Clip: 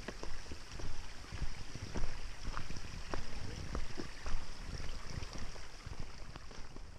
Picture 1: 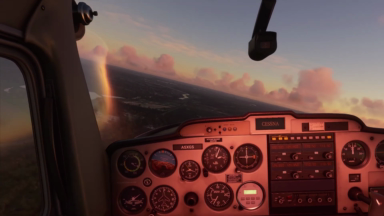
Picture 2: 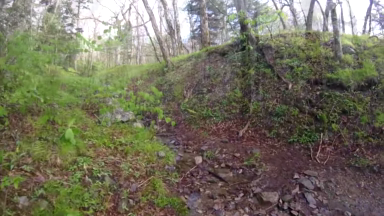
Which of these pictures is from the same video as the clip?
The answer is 2